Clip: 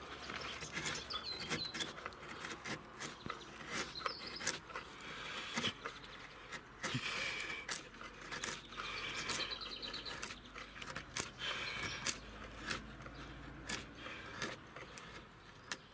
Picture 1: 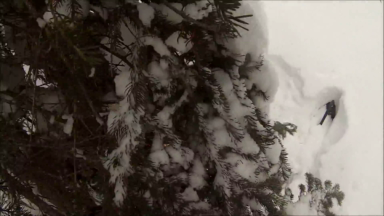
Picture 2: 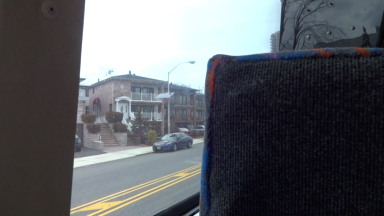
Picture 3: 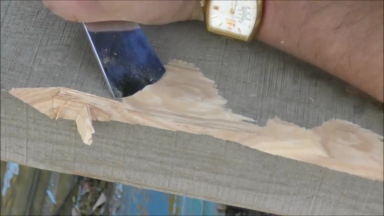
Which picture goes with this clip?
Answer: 3